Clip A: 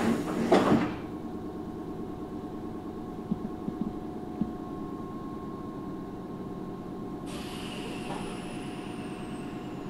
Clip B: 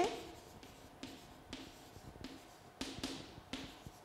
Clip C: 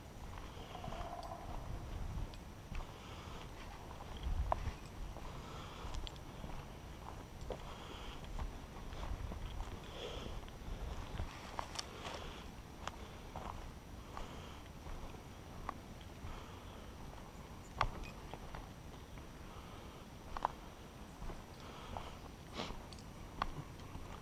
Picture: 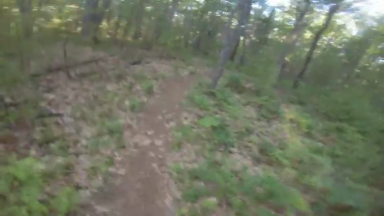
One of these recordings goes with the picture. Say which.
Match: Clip C